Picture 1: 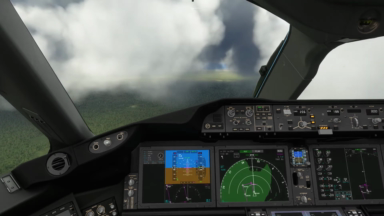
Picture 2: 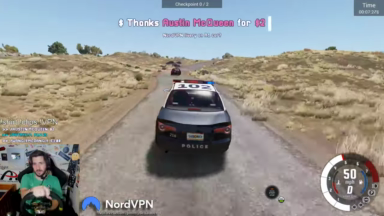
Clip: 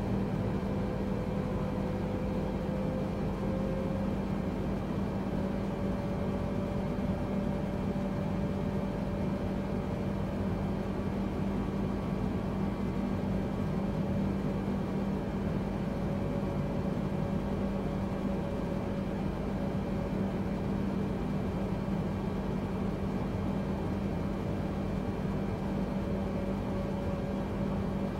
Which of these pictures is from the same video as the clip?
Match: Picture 1